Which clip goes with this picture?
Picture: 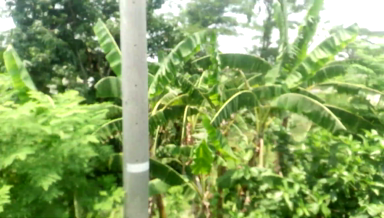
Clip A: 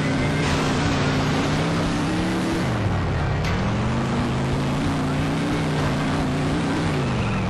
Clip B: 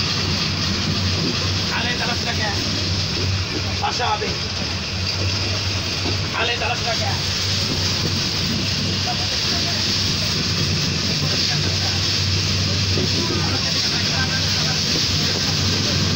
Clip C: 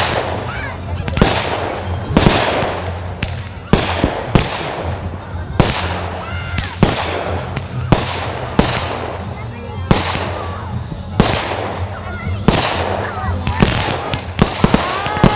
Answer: B